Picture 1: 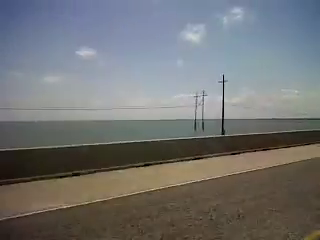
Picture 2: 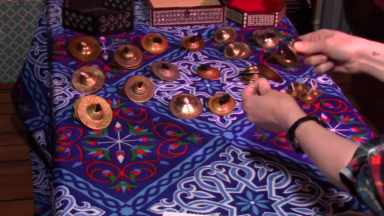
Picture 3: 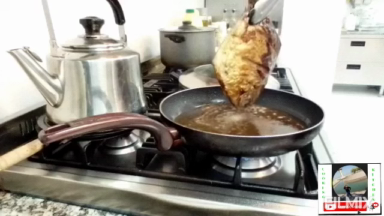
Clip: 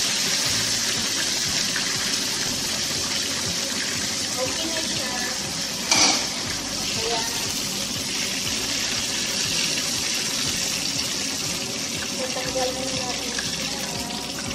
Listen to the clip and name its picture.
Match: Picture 3